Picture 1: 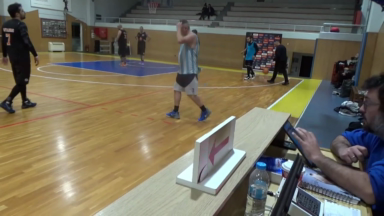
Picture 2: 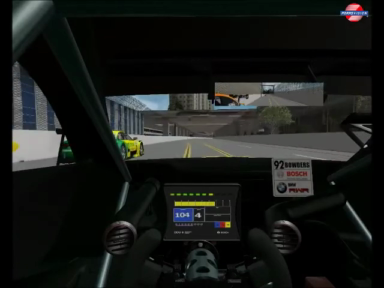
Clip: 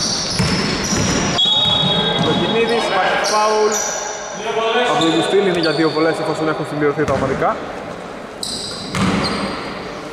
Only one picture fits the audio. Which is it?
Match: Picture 1